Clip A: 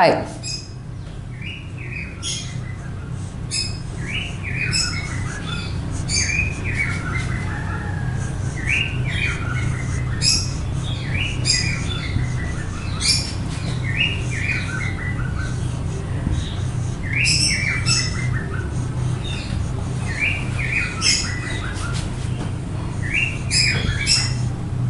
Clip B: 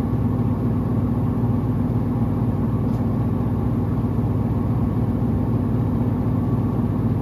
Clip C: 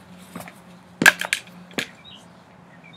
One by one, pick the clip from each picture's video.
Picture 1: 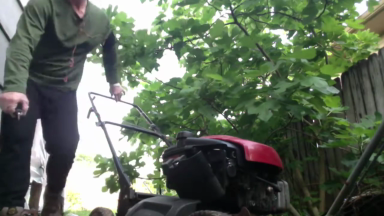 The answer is C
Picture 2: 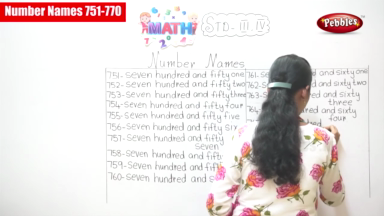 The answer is A